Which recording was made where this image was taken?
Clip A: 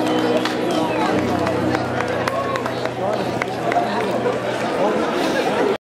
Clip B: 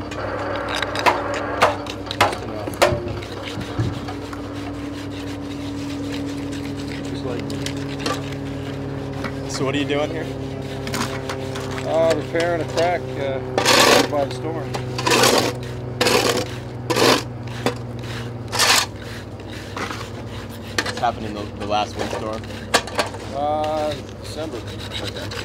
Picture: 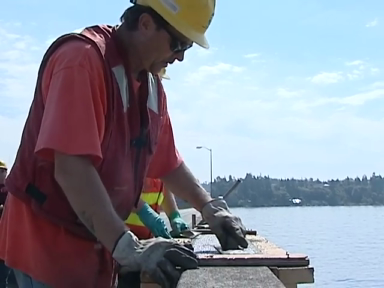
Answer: B